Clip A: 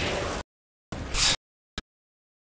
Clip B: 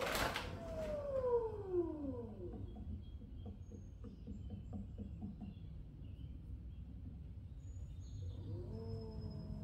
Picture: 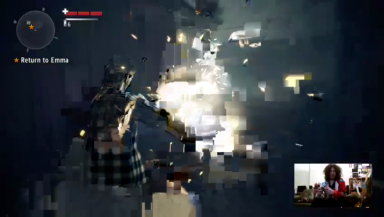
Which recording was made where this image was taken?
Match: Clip A